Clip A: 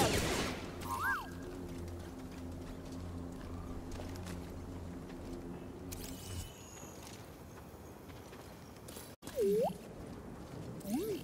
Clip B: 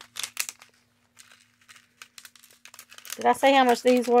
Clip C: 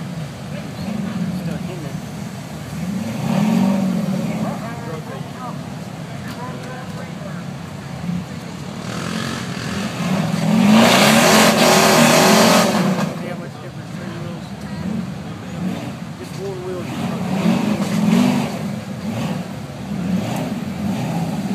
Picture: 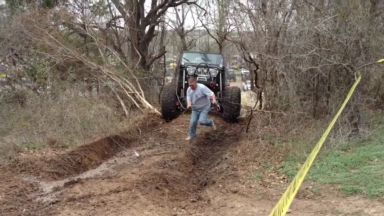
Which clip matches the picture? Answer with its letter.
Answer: C